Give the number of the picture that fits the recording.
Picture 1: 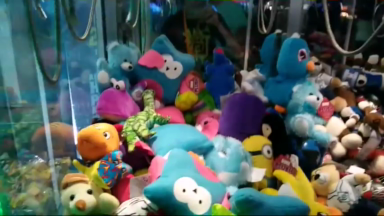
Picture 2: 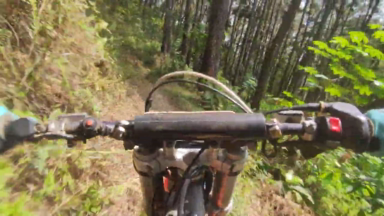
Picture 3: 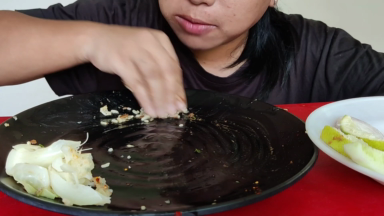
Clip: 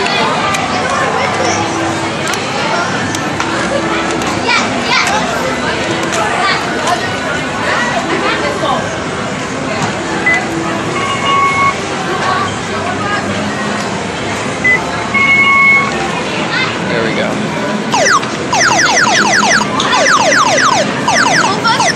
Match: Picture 1